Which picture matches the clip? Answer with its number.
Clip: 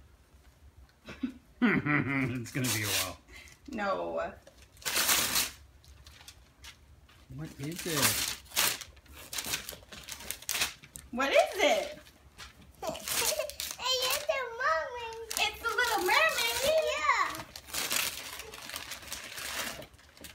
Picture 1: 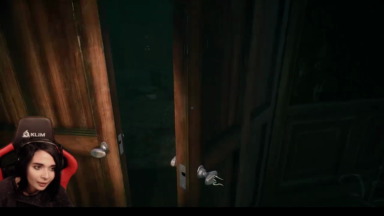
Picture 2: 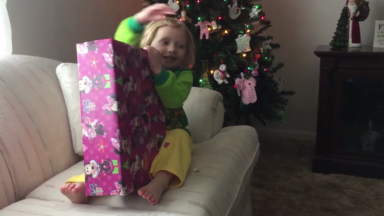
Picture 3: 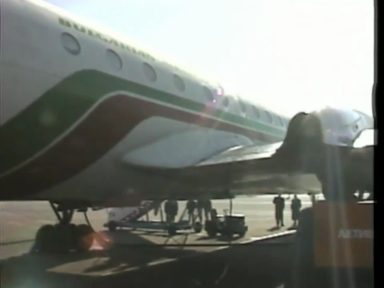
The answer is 2